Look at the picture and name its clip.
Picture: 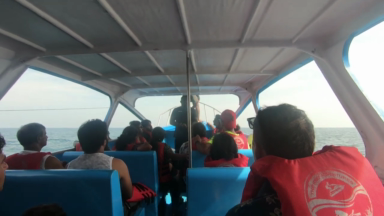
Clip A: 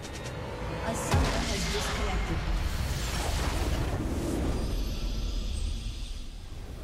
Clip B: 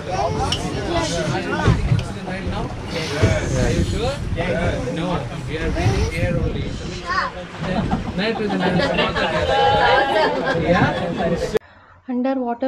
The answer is B